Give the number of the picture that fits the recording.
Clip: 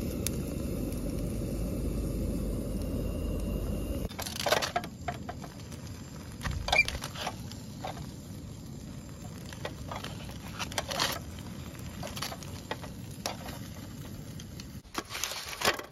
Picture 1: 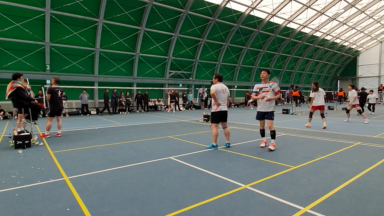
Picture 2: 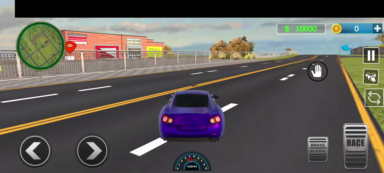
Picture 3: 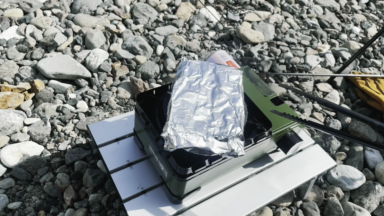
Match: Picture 3